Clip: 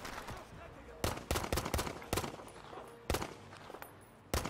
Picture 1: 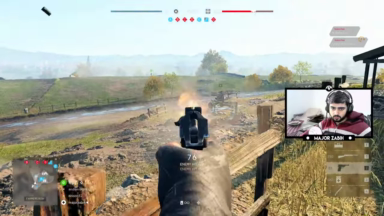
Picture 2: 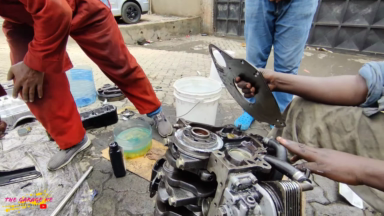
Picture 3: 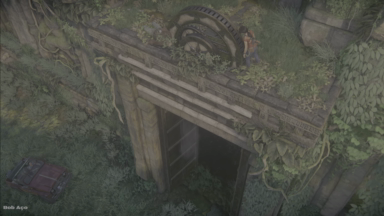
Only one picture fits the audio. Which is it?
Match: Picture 1